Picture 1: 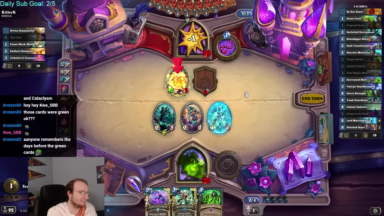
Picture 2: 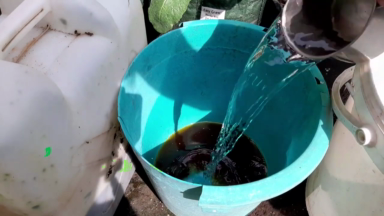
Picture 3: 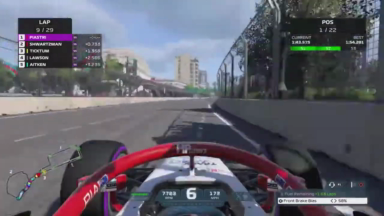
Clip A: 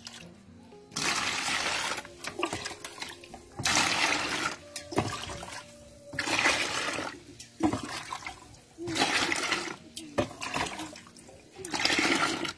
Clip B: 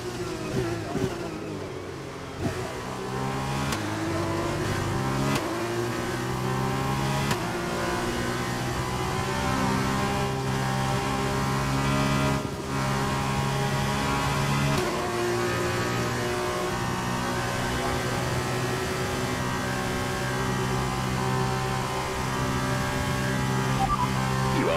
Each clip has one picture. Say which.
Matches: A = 2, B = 3